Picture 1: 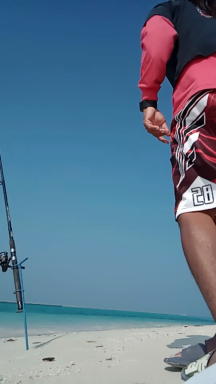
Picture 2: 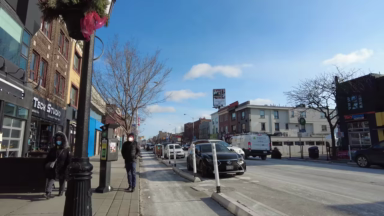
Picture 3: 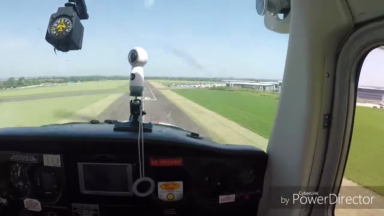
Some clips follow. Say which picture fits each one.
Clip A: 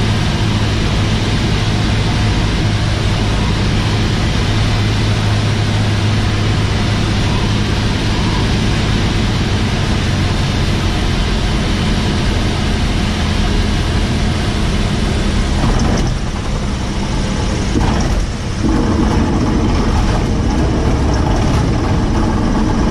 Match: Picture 3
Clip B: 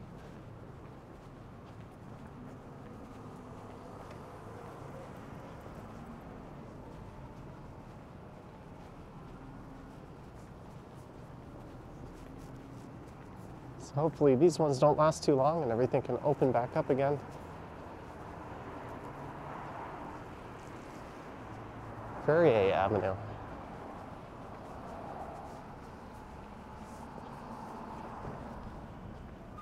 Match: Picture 2